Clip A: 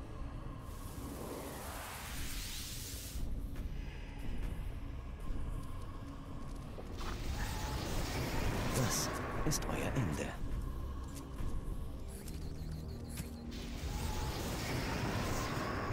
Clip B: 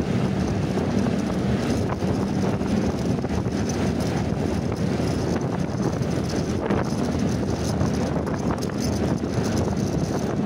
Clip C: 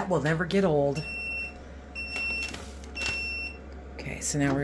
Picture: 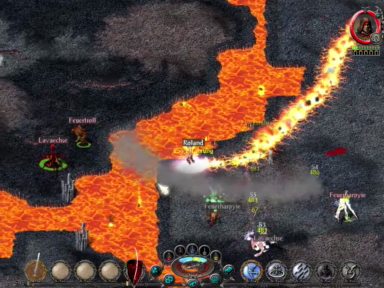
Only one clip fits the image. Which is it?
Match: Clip A